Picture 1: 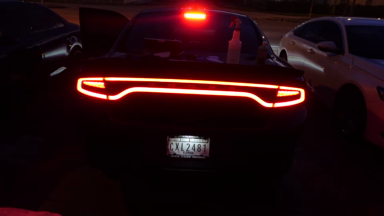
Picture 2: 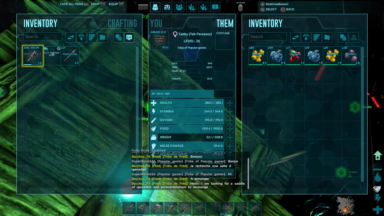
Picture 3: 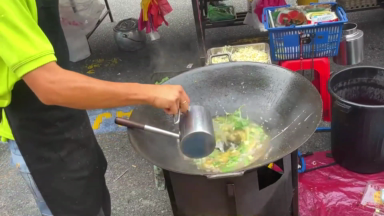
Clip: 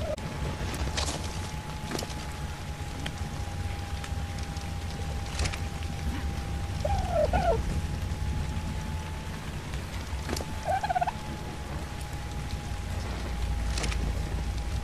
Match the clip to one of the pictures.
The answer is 2